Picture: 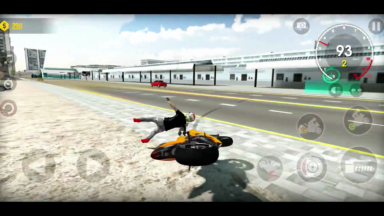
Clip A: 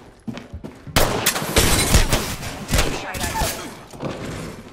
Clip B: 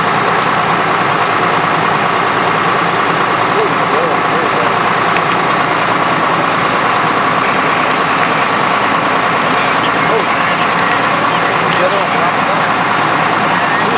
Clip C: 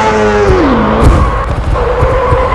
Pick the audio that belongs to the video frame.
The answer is C